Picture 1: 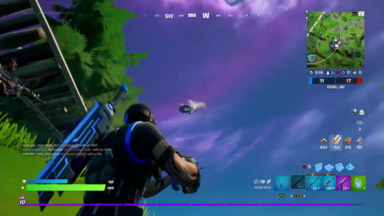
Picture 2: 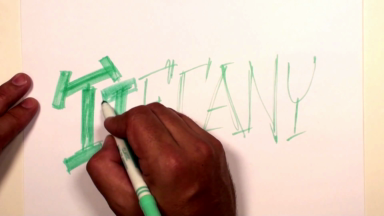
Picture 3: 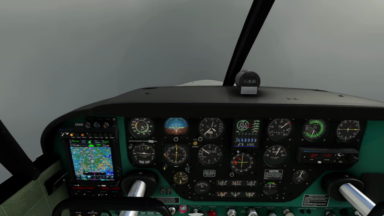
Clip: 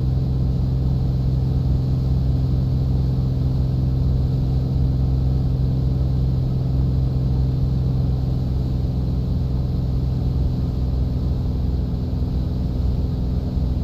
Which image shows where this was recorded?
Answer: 3